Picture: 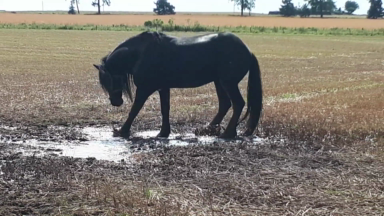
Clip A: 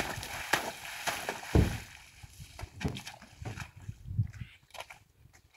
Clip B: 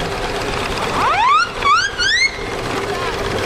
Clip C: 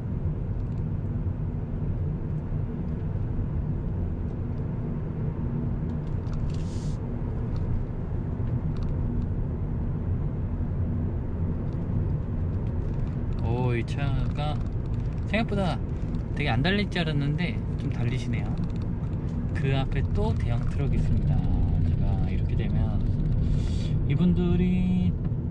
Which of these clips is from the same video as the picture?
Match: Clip A